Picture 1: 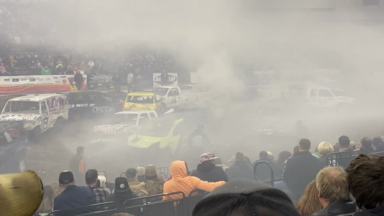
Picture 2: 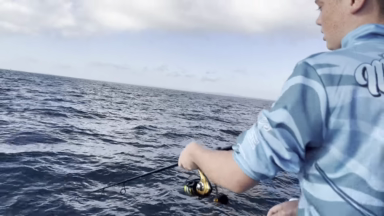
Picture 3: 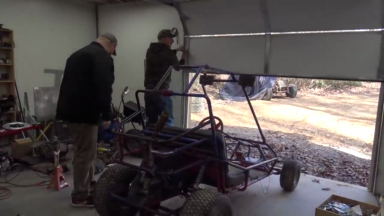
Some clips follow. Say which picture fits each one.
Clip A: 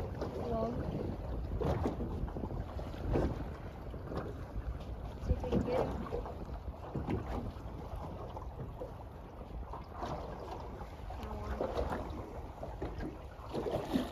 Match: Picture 2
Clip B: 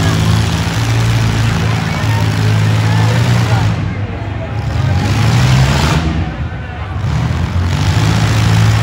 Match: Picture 1